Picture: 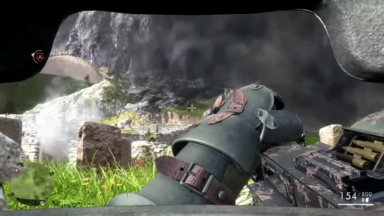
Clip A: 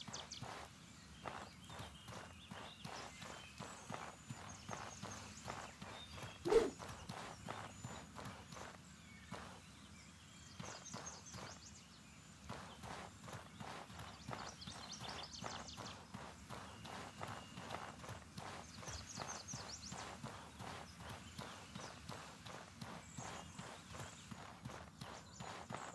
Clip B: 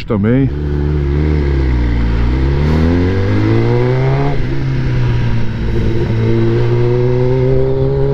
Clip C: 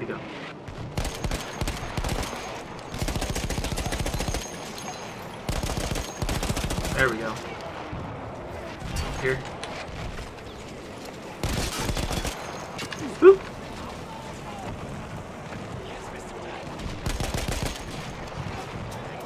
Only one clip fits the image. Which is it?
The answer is C